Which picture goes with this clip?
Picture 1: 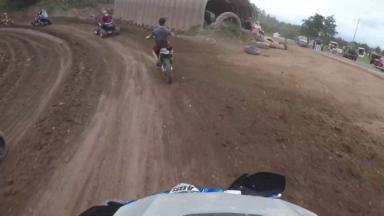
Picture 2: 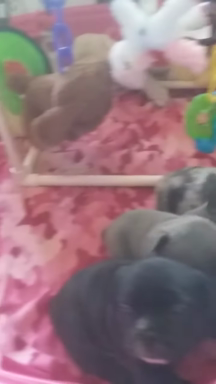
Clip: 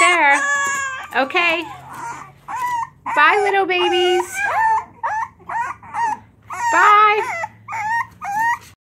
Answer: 2